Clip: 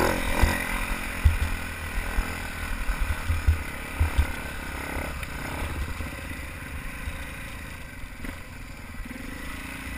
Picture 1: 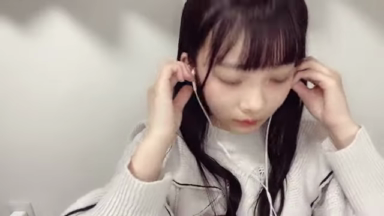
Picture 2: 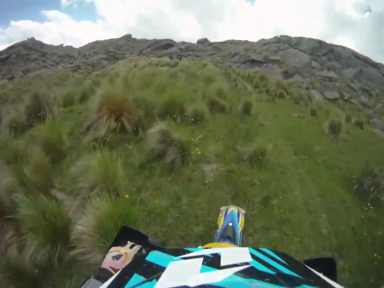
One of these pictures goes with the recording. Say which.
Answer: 2